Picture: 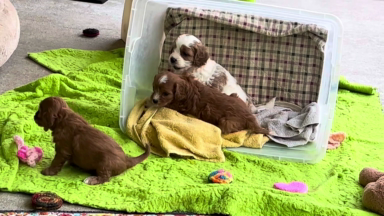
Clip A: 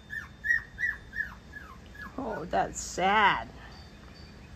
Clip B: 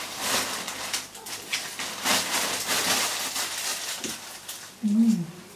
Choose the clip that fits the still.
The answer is A